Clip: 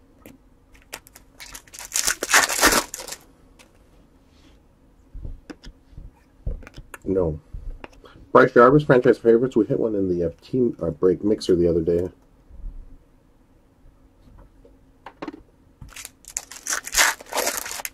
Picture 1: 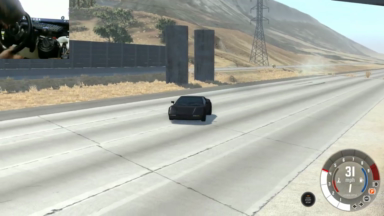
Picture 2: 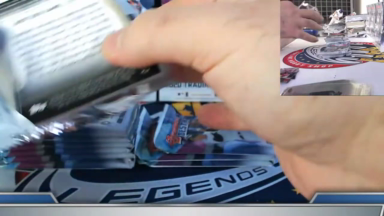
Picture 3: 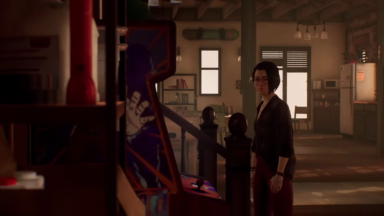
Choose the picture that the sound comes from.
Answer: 2